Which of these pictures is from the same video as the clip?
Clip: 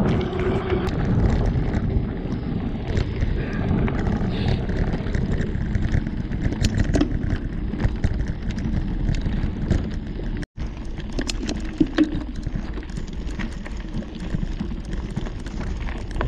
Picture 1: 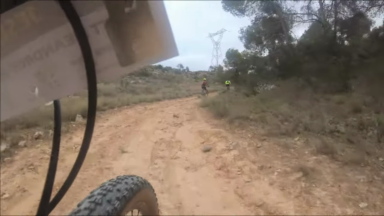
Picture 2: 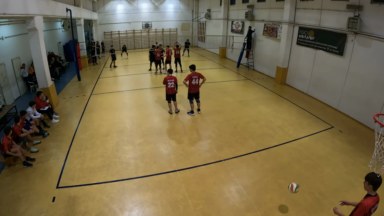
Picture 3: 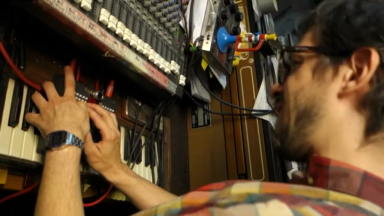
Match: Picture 1